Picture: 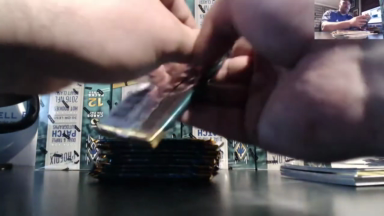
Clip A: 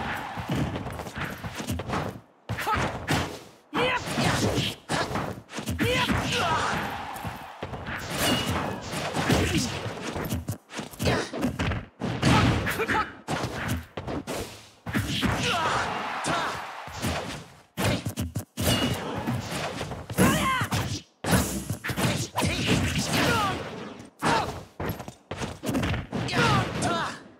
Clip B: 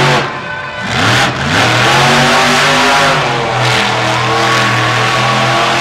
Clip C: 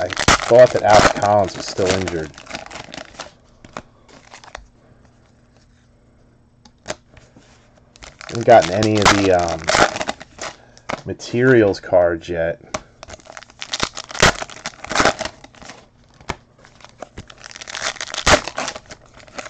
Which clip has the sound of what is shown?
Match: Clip C